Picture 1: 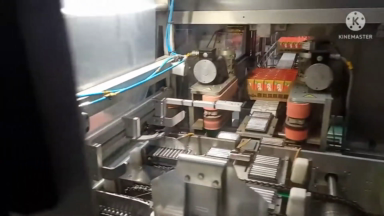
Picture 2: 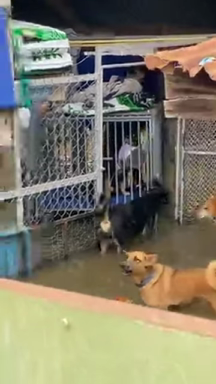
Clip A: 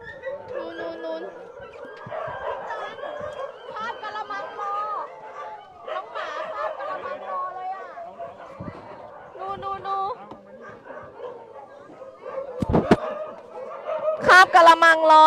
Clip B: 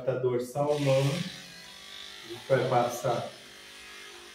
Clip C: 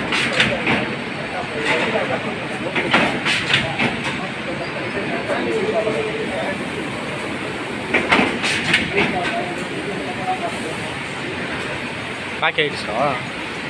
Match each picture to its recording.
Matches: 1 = C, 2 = A